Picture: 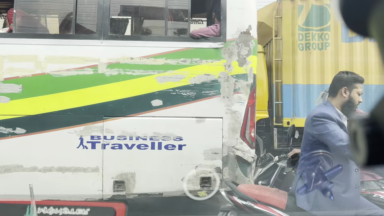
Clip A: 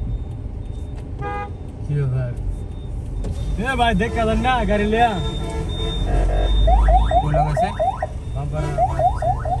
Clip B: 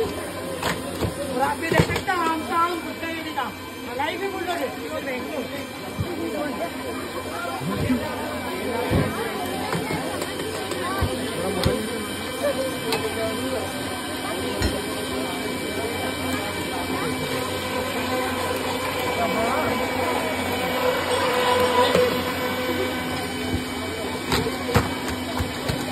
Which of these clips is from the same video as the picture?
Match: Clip A